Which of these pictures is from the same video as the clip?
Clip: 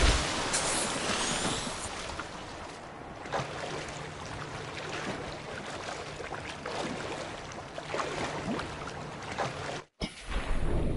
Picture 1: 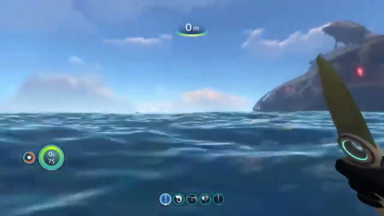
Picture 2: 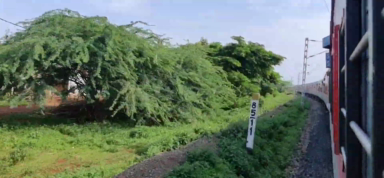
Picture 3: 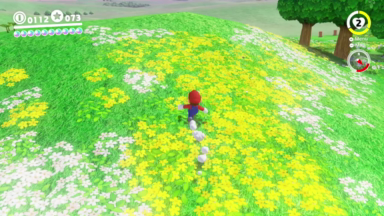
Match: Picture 1